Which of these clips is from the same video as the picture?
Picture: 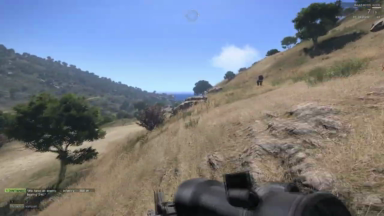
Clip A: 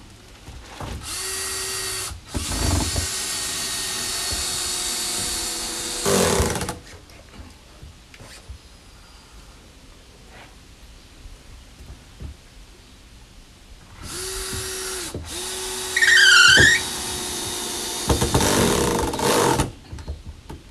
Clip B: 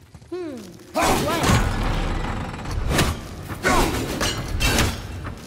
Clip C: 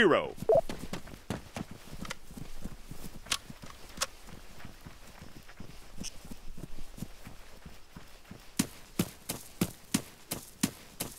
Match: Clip C